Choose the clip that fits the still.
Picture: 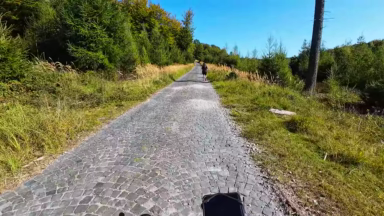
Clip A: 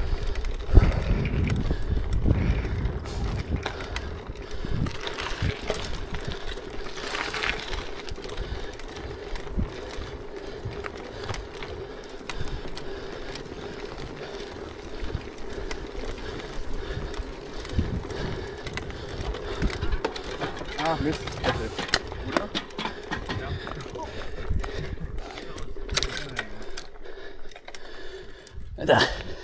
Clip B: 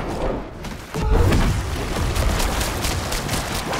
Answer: A